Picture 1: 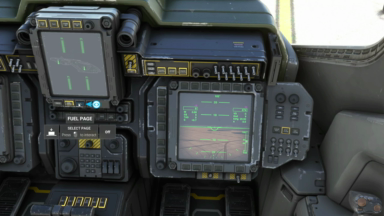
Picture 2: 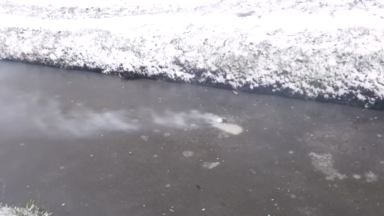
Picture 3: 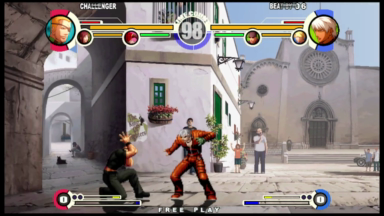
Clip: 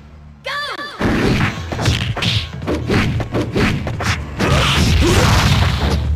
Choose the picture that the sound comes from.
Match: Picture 3